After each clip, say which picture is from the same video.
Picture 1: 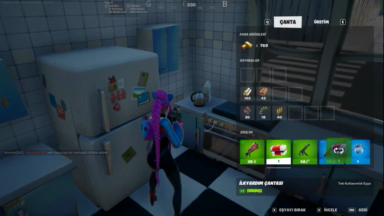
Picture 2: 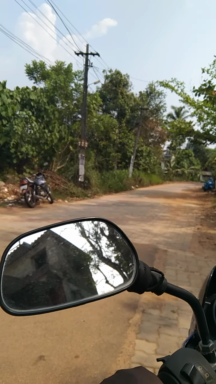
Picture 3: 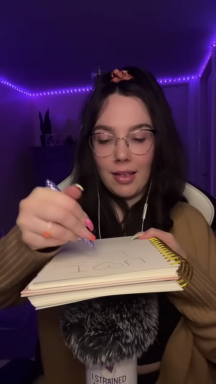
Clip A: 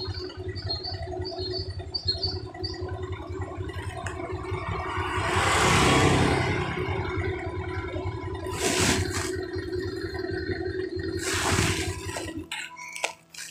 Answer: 2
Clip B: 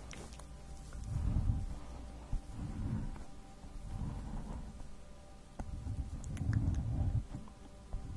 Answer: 3